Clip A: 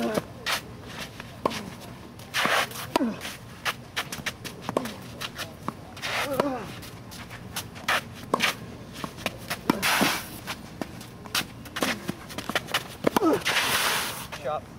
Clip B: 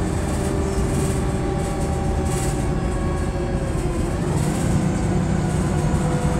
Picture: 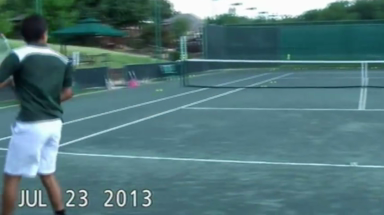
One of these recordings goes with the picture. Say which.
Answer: A